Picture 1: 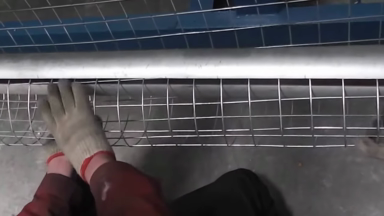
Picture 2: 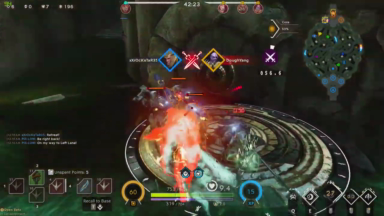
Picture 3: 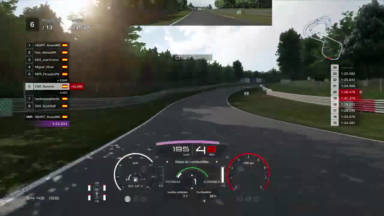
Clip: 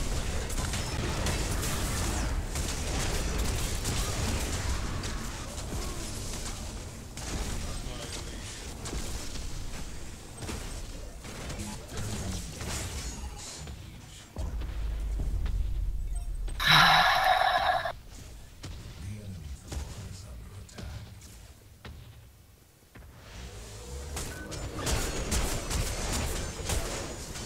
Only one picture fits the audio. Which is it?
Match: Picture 2